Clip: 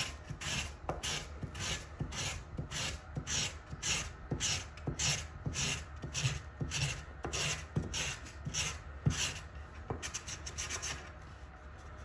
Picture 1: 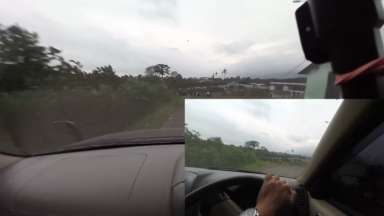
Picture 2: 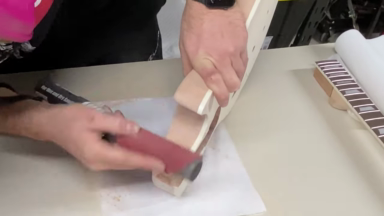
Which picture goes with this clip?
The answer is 2